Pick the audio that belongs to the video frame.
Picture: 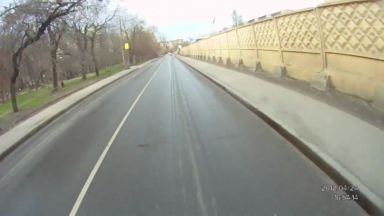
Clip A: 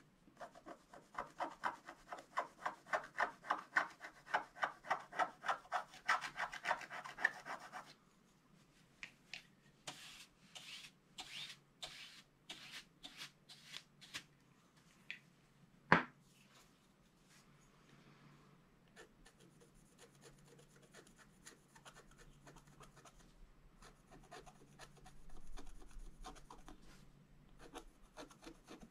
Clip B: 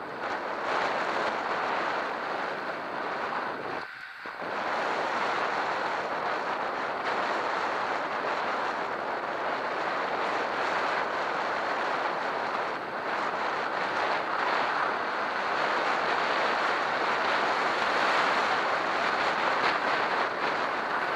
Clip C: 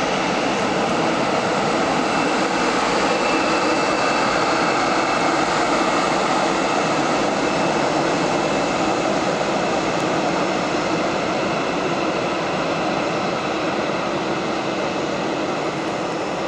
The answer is B